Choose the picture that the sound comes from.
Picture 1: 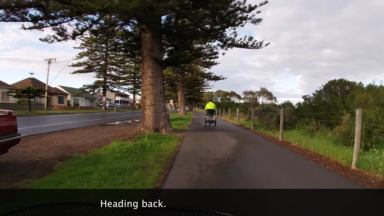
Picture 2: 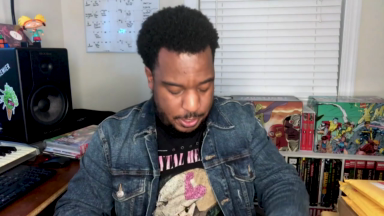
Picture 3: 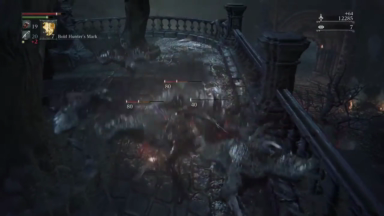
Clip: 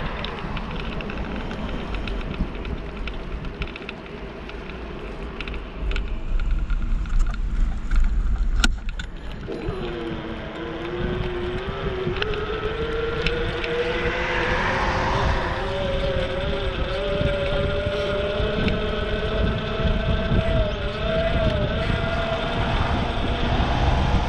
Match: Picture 1